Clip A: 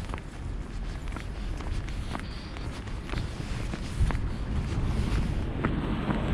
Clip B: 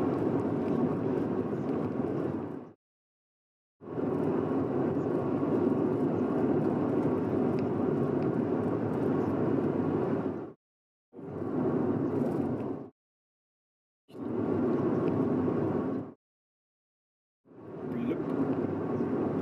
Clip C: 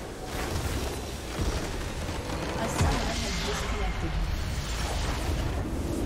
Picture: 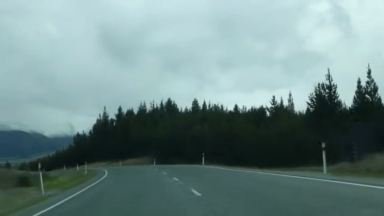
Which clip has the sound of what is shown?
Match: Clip B